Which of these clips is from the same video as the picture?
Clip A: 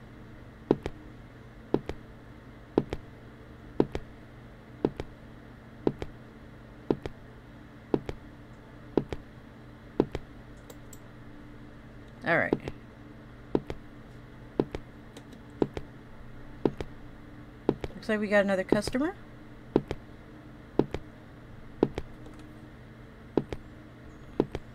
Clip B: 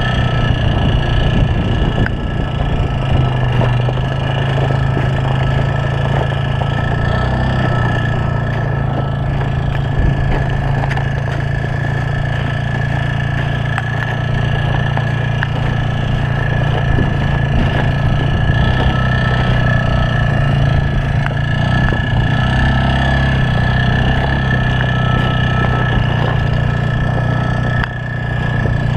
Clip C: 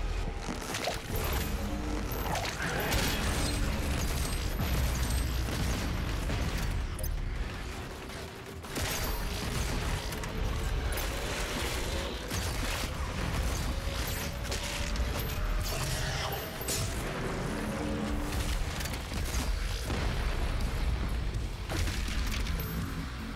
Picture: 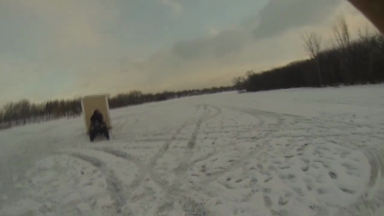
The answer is B